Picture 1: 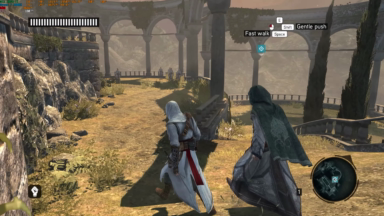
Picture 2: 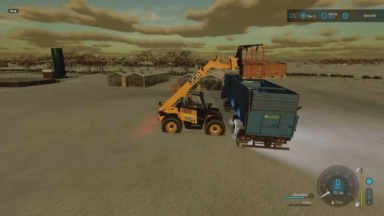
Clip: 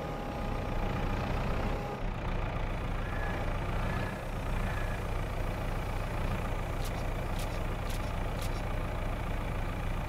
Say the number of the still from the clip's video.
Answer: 2